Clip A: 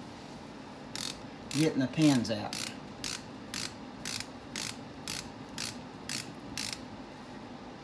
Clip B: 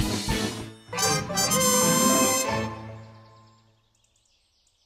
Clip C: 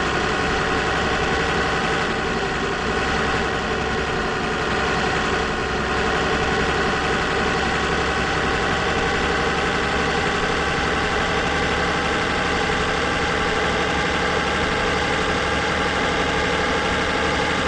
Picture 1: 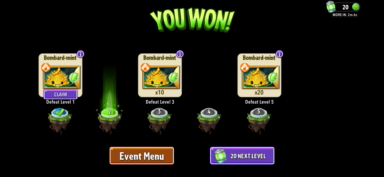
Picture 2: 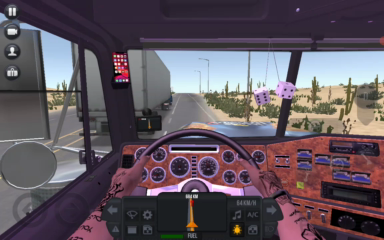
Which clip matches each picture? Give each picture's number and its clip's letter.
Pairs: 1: B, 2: C